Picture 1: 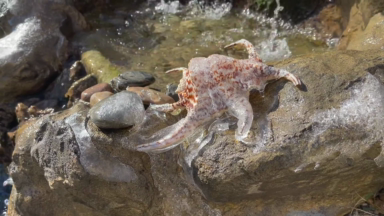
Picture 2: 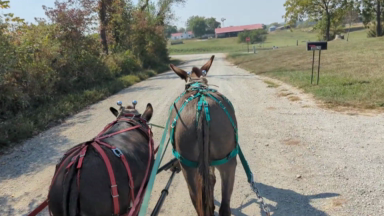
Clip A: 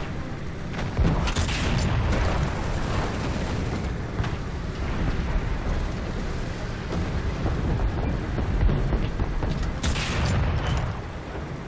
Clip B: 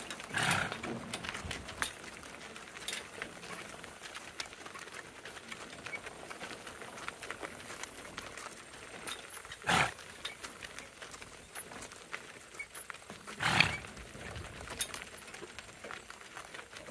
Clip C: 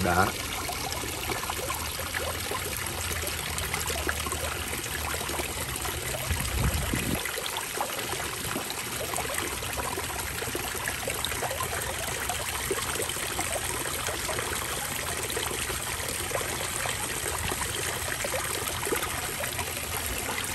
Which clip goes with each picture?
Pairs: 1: C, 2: B